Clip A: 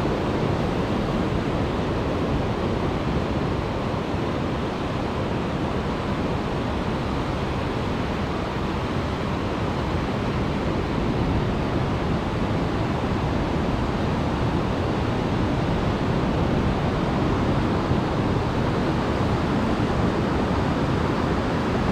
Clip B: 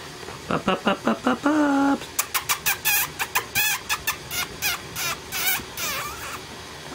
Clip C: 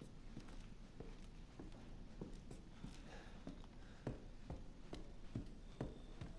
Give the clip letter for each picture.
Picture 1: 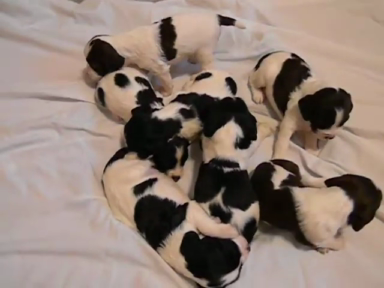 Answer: B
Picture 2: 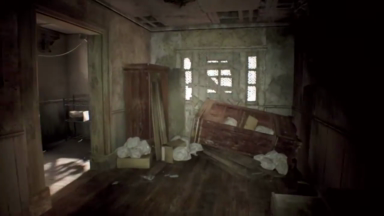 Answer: C